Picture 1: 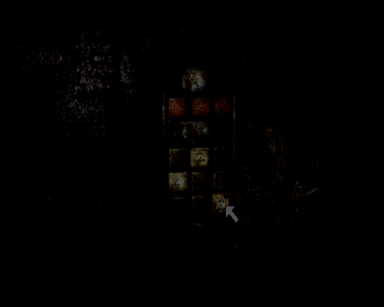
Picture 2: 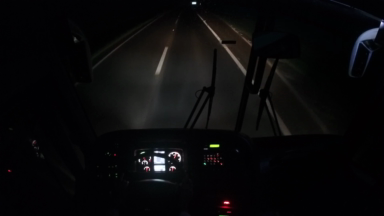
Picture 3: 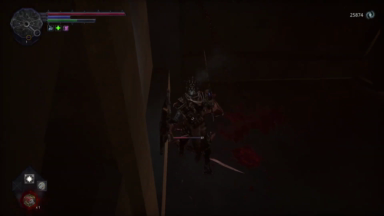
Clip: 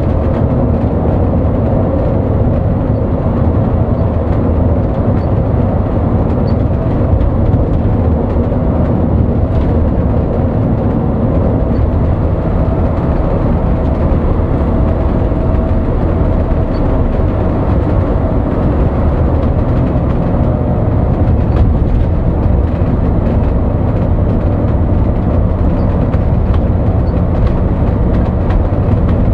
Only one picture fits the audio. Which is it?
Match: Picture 2